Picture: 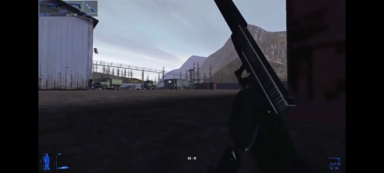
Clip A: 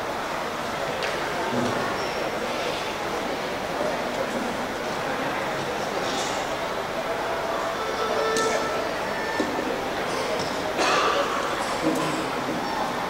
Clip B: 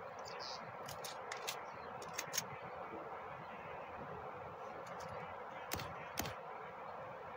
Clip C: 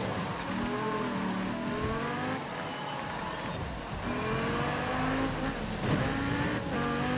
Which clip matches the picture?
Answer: B